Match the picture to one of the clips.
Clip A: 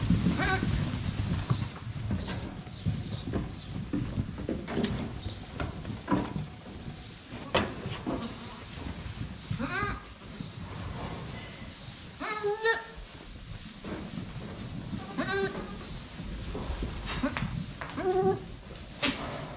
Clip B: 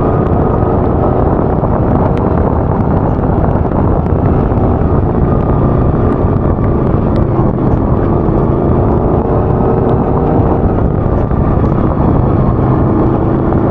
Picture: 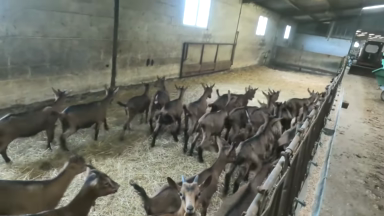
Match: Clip A